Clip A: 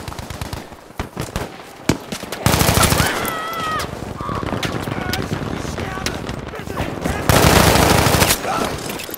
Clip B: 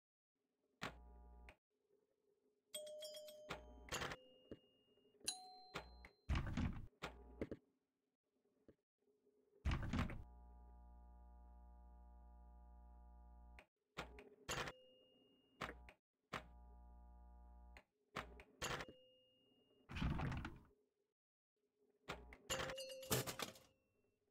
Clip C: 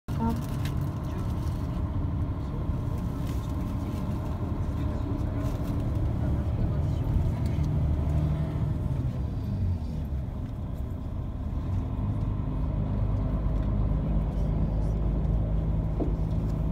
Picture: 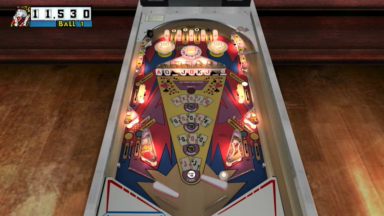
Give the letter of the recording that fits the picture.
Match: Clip B